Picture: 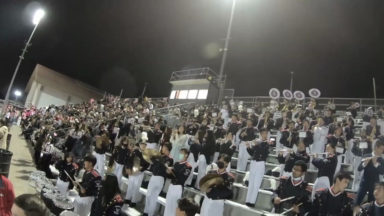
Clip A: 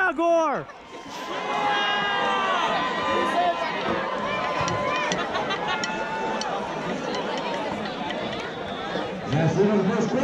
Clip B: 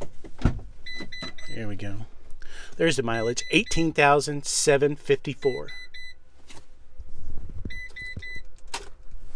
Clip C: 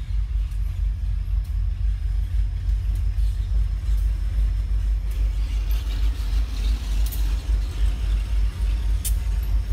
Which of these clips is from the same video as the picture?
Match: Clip A